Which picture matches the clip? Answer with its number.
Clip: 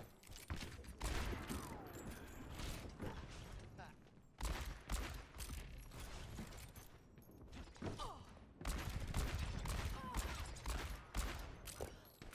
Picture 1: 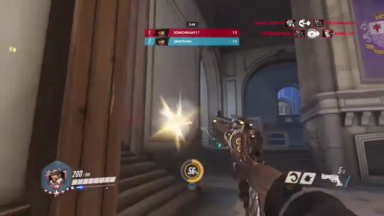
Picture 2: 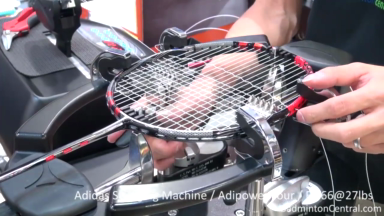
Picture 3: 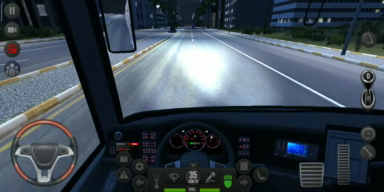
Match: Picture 1